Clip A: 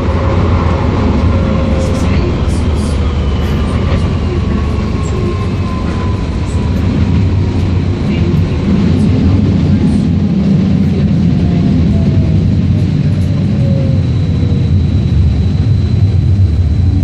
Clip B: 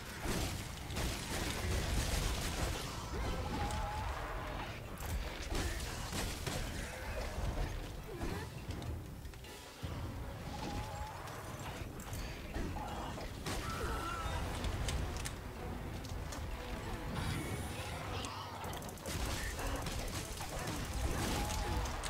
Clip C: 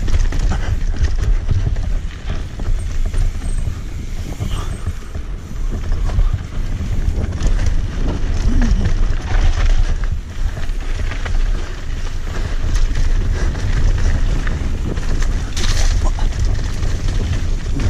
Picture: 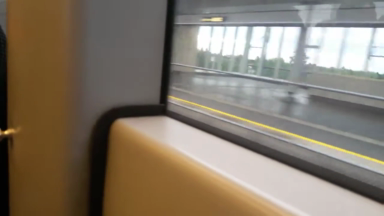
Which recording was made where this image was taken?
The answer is A